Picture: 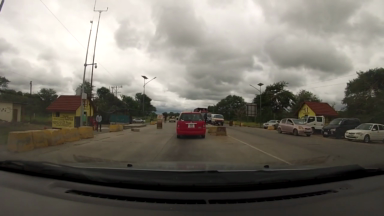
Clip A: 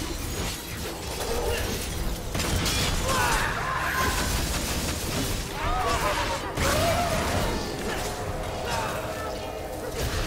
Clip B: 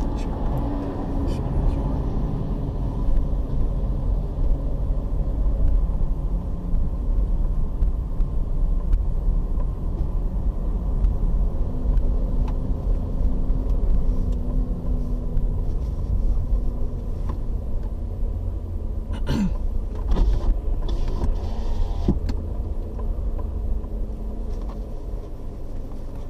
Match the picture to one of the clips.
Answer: B